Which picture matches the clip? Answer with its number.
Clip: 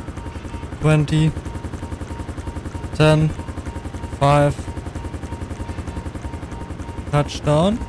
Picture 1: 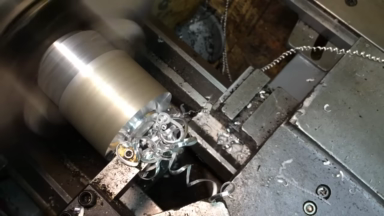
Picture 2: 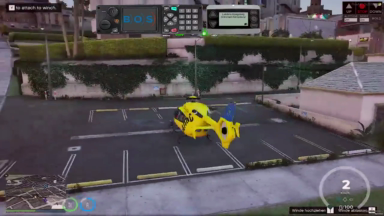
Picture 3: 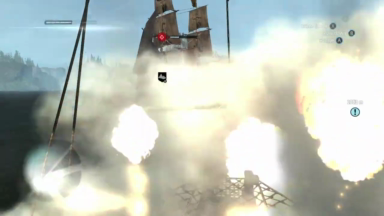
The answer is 2